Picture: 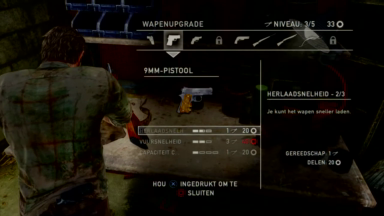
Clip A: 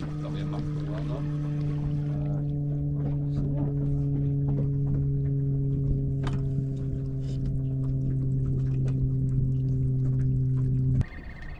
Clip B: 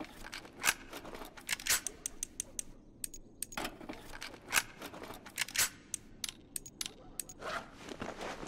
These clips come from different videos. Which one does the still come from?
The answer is B